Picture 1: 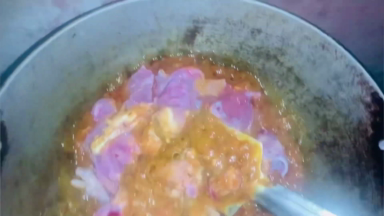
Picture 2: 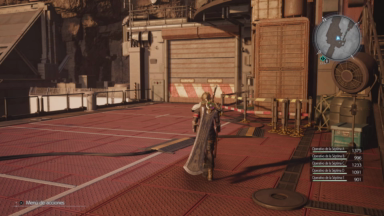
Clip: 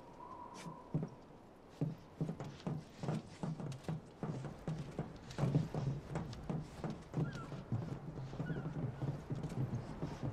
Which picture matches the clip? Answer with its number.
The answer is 2